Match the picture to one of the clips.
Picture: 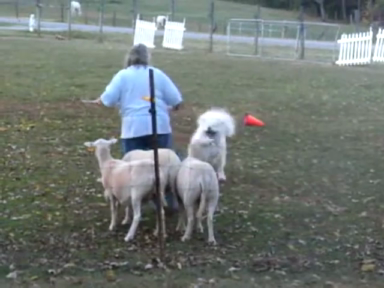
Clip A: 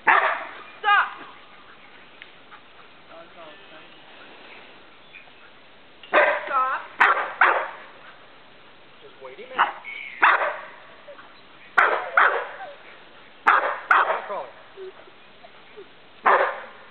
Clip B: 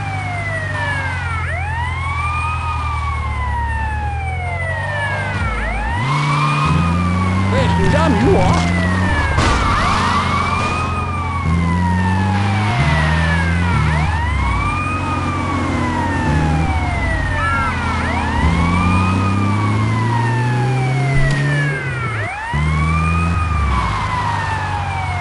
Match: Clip A